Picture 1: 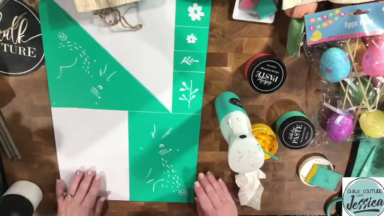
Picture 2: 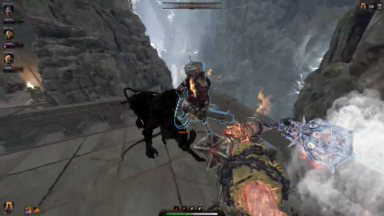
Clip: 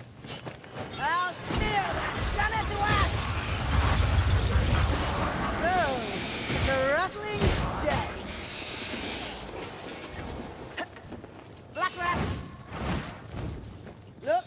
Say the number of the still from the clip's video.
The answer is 2